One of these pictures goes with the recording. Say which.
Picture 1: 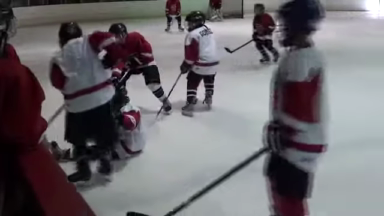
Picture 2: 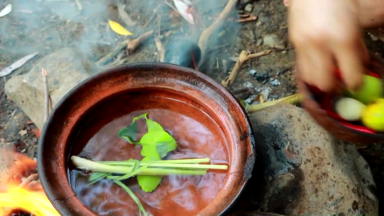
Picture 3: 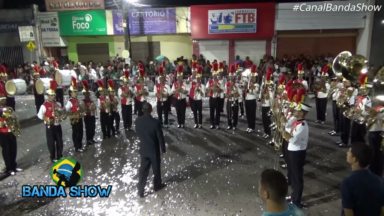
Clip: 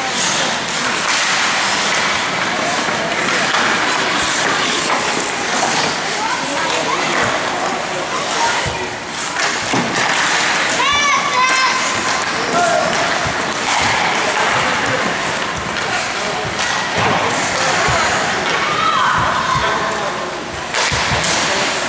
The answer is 1